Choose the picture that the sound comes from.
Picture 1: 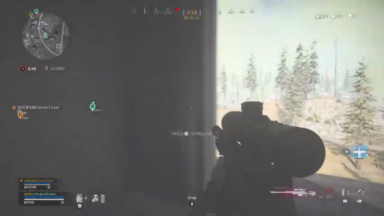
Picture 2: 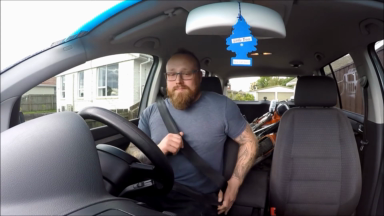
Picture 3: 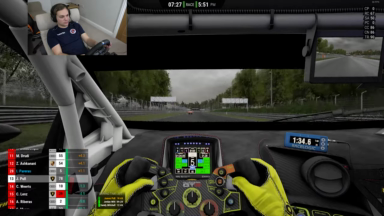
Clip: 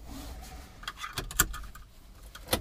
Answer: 2